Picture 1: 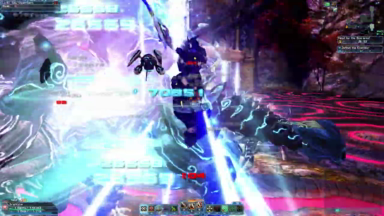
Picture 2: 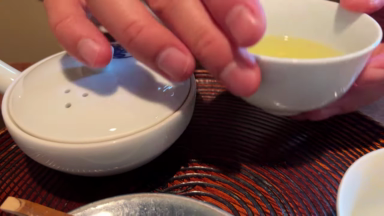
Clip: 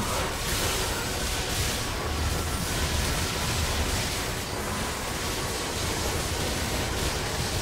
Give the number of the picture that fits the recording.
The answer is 1